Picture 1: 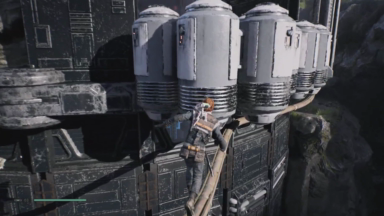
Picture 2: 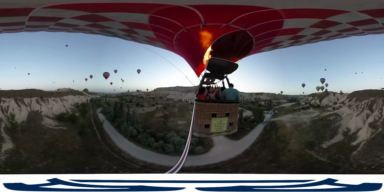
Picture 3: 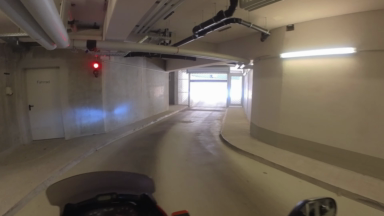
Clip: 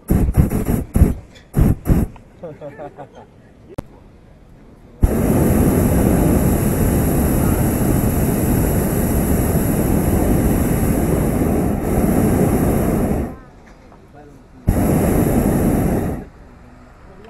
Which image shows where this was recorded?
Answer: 2